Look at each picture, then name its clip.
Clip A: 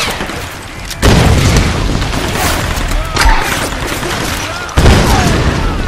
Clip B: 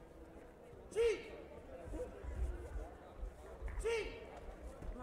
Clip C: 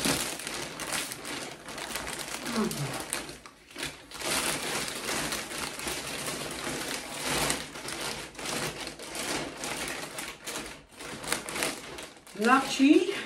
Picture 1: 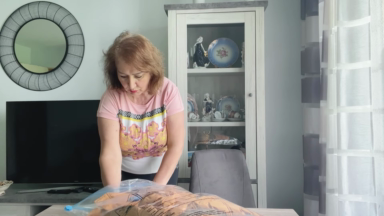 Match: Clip C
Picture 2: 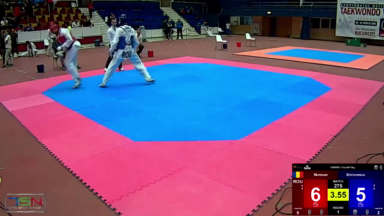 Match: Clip B